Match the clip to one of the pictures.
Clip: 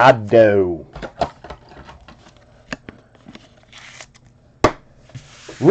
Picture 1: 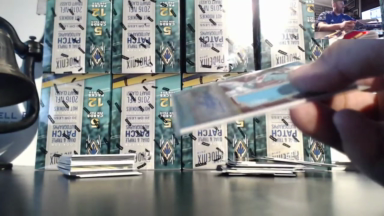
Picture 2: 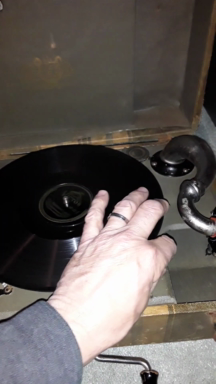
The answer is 1